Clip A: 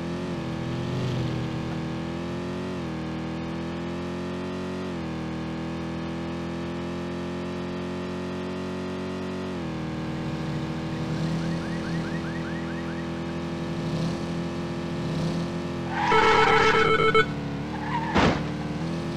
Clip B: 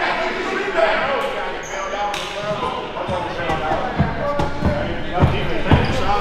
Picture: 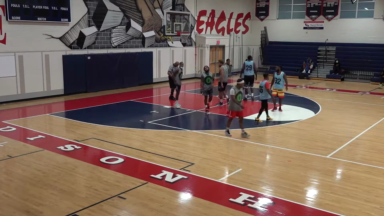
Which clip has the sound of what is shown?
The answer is B